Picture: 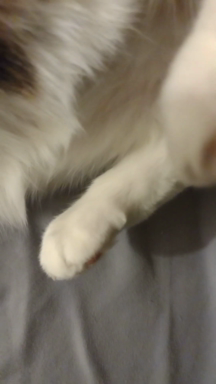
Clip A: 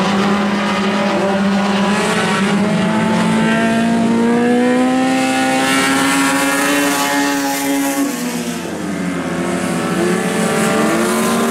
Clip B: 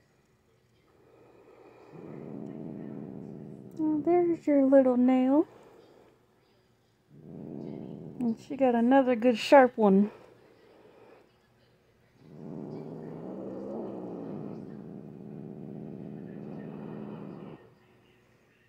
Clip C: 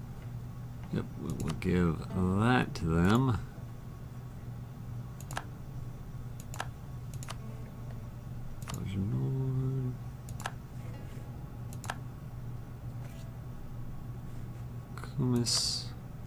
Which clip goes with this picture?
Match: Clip B